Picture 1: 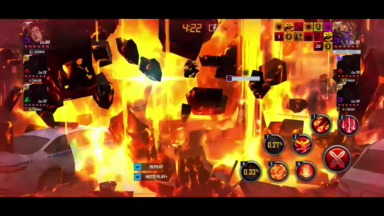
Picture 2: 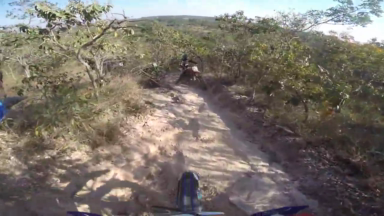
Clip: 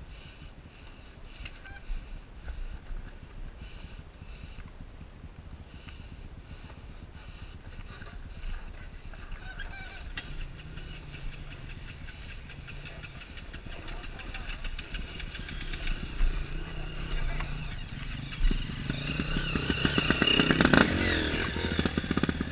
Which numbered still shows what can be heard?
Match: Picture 2